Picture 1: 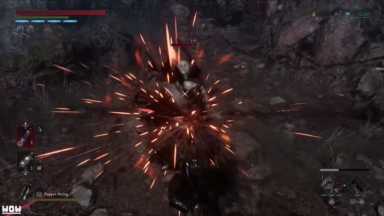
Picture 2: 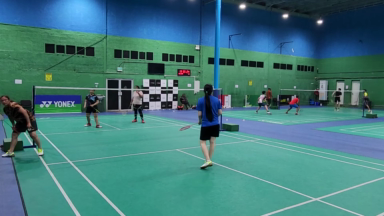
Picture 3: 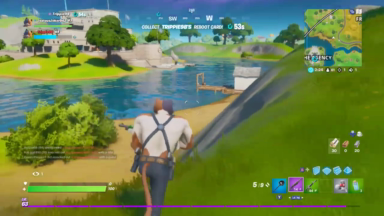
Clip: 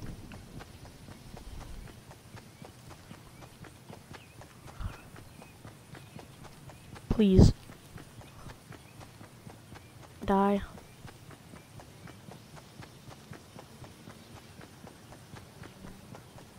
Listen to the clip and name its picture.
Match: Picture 3